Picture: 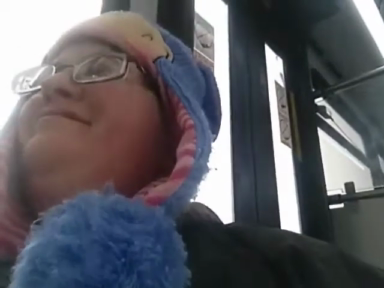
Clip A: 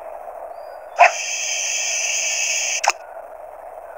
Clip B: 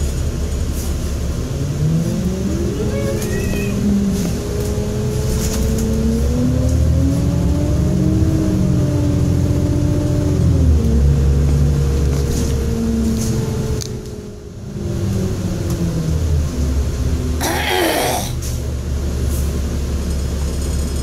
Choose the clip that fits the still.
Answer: B